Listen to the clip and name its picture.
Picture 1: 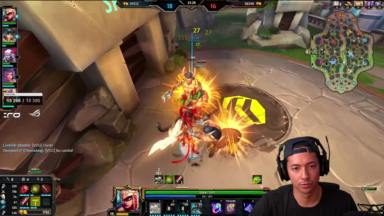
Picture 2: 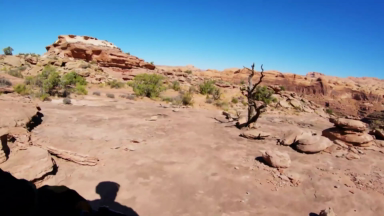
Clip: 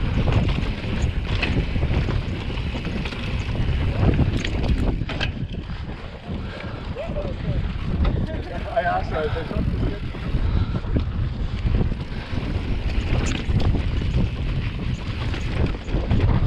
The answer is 2